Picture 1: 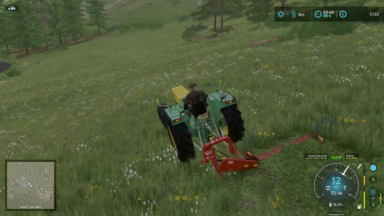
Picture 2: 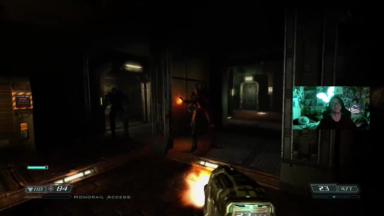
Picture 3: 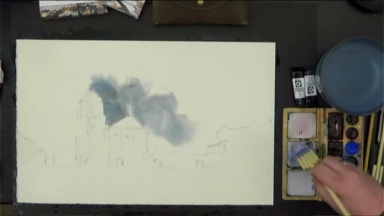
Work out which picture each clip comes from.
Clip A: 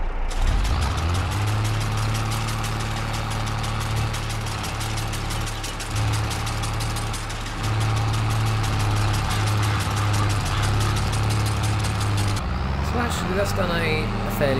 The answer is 1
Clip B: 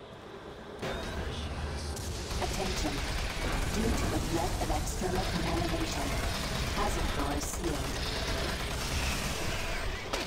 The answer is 2